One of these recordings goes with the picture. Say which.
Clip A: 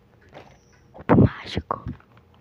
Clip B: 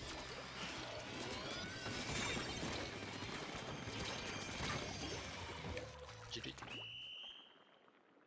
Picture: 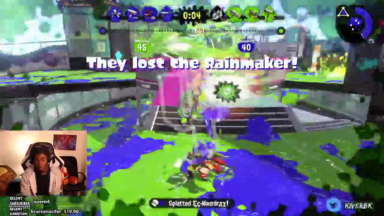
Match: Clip B